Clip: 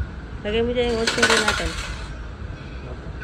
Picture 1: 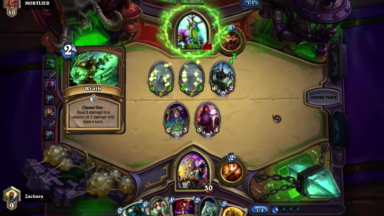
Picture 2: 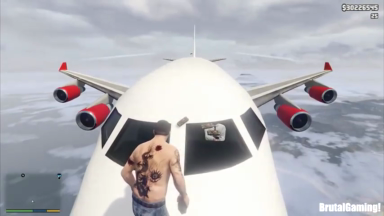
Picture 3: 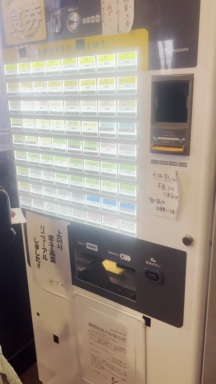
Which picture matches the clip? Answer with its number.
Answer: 3